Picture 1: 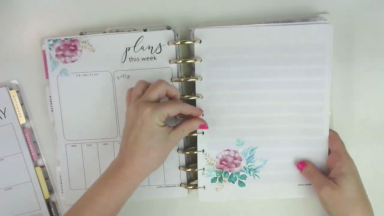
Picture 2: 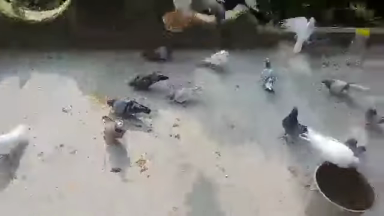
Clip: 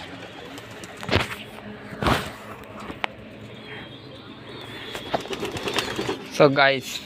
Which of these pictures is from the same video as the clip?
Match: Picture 2